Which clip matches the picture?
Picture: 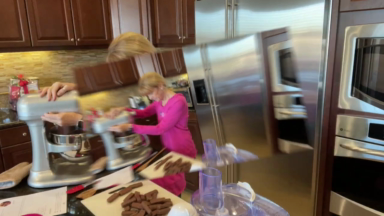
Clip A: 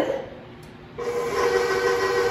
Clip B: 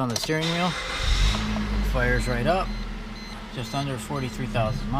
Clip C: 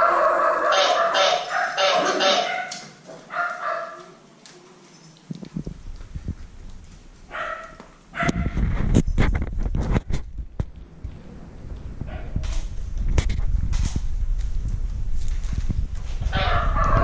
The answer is A